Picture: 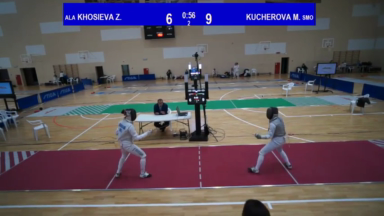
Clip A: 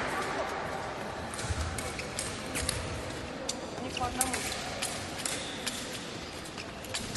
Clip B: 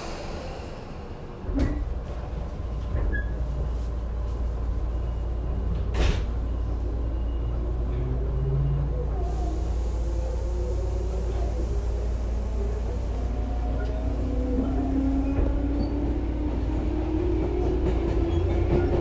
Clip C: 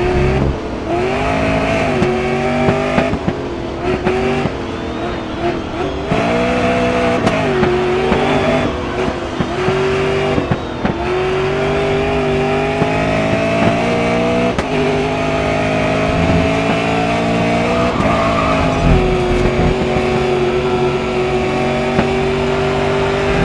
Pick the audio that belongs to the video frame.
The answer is A